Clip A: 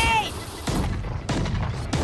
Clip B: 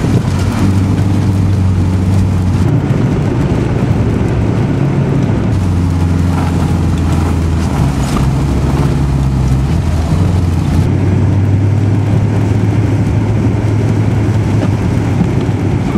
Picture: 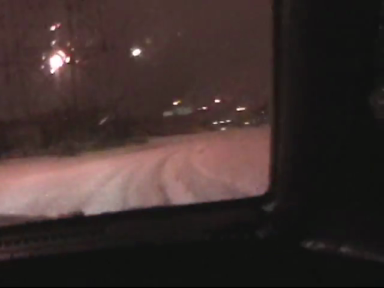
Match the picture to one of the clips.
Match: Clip B